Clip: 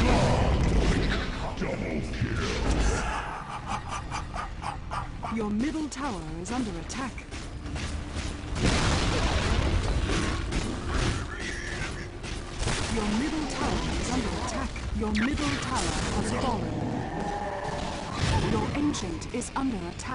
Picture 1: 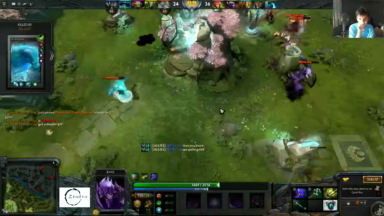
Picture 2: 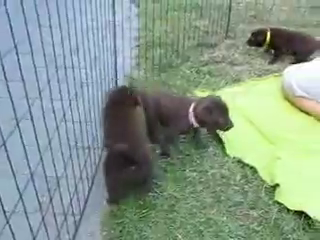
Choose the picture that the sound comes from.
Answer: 1